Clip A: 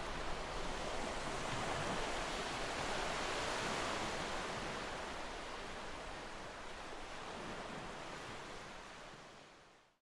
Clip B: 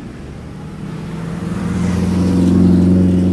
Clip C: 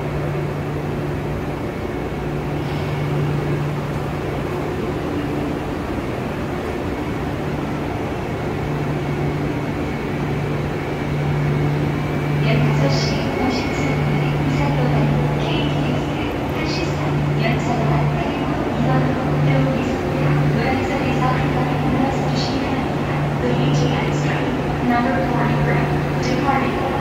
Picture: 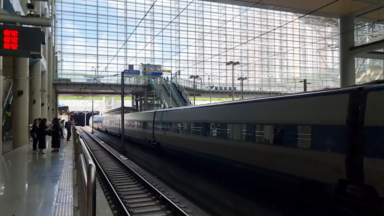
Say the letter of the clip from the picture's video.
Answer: C